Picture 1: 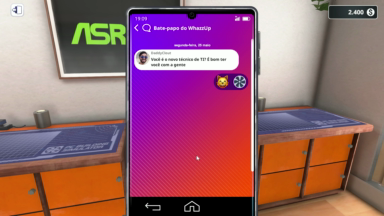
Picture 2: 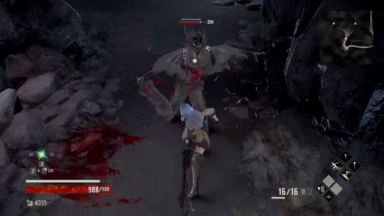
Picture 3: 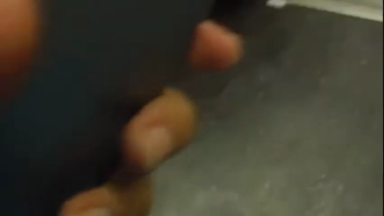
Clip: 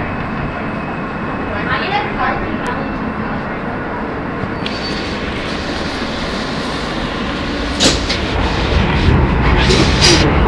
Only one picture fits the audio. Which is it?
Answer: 3